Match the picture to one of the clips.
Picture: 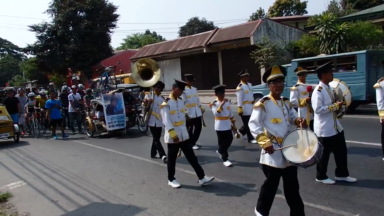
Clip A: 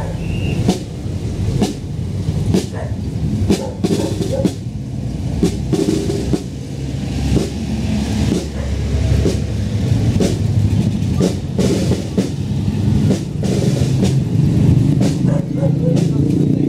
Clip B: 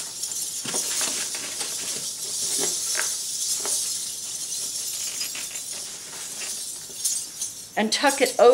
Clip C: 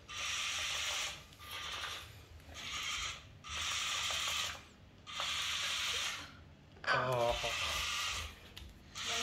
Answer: A